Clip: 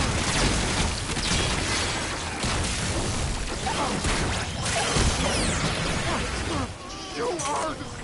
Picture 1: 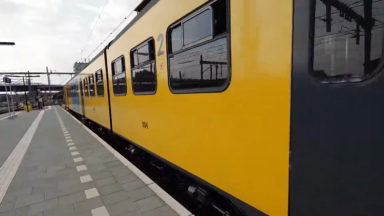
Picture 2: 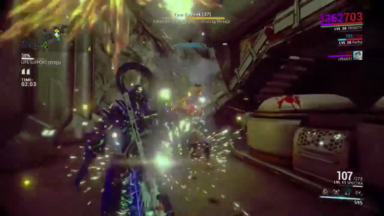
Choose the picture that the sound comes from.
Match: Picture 2